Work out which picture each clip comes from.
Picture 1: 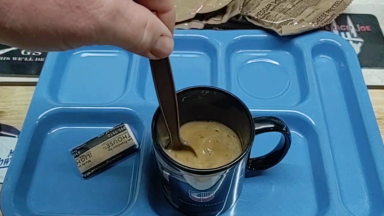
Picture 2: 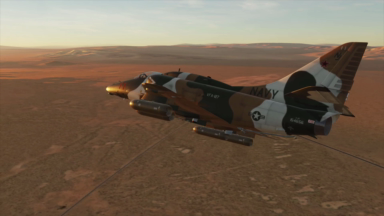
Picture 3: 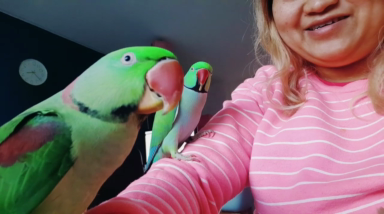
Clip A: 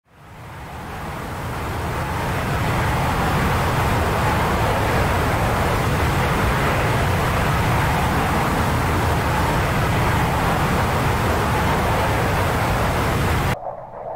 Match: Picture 2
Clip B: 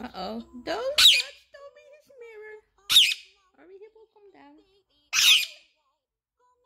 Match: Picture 3